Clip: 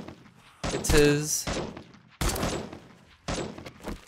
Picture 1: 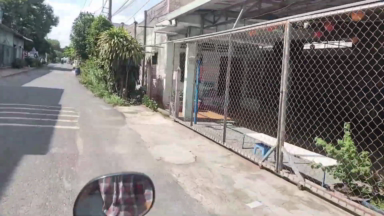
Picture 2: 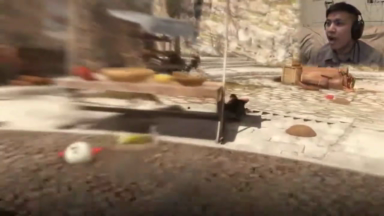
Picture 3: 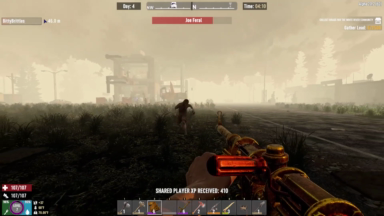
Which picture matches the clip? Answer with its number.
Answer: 3